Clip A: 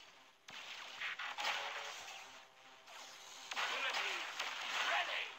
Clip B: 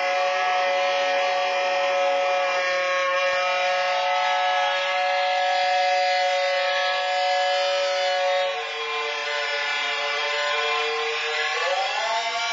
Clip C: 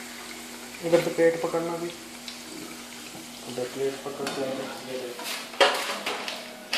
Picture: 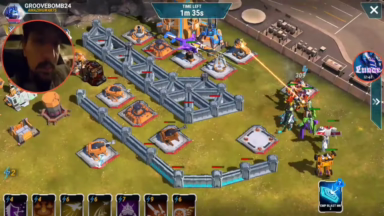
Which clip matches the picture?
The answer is A